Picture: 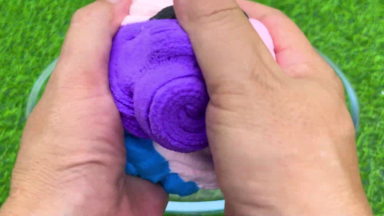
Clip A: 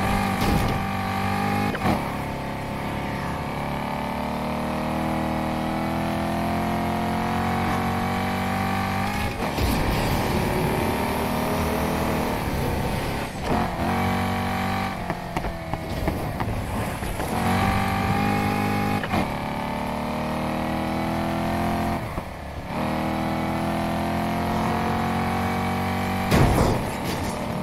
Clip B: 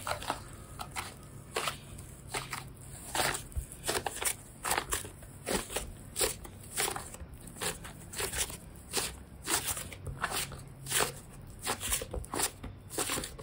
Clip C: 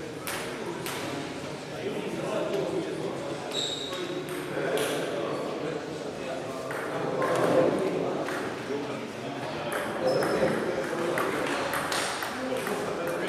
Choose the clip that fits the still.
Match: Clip B